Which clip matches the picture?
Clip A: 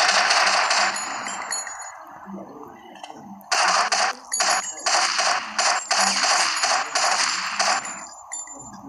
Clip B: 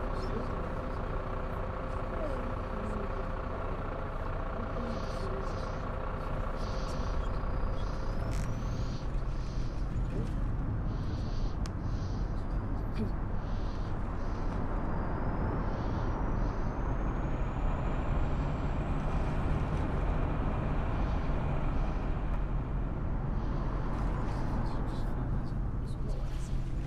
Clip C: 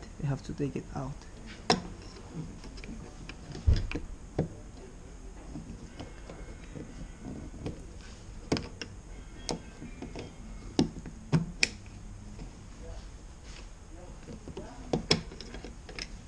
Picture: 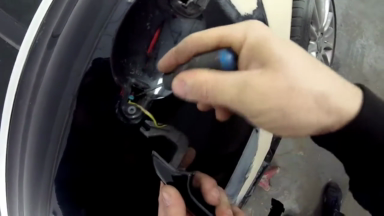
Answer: C